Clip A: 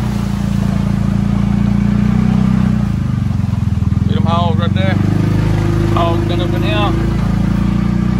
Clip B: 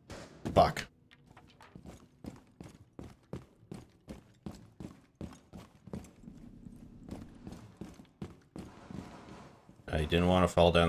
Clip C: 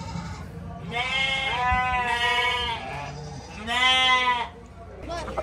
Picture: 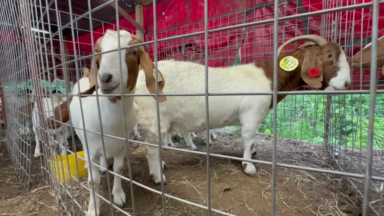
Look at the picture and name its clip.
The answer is C